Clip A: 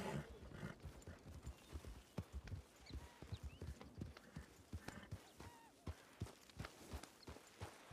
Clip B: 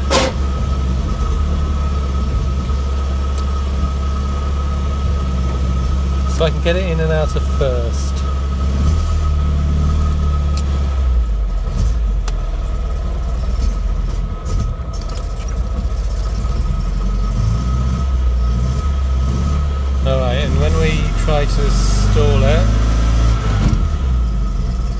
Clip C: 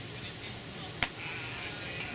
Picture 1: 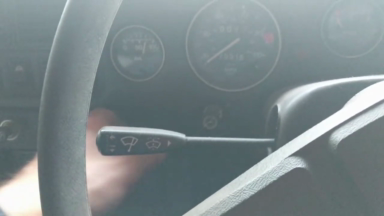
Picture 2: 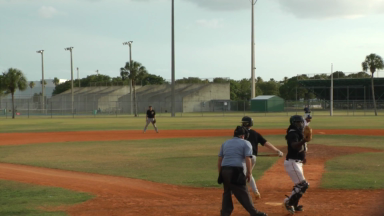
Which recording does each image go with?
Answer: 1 B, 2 C